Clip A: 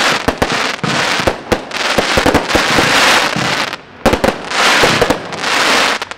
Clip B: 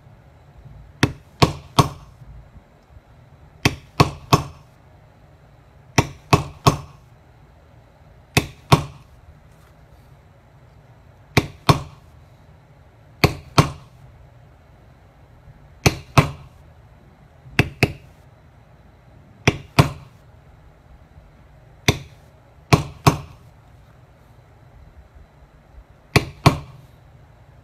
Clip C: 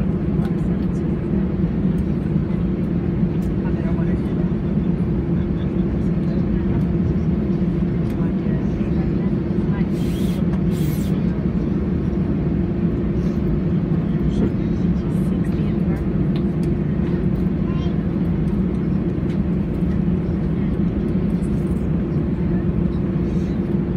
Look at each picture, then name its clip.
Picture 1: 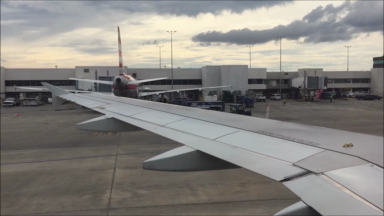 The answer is C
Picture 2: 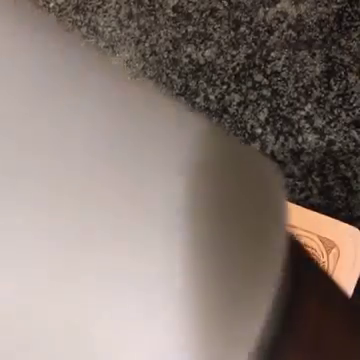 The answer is B